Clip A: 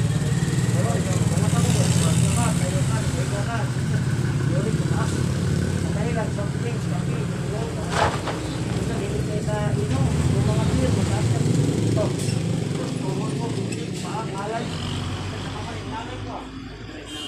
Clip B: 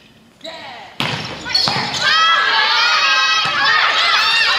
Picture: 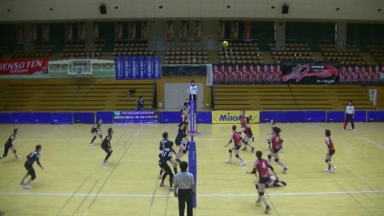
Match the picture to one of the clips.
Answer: B